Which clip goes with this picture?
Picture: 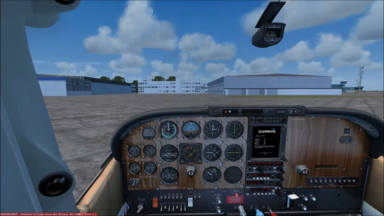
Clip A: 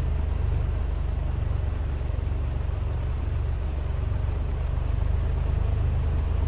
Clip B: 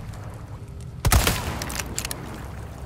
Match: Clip A